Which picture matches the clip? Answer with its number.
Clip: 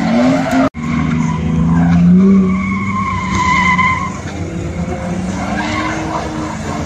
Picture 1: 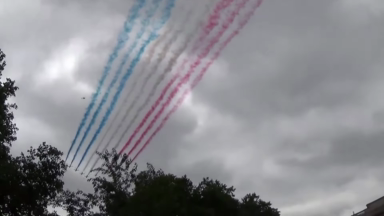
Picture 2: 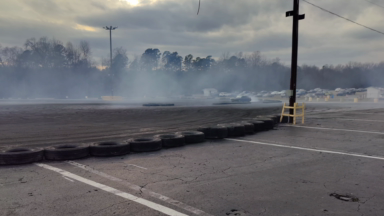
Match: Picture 2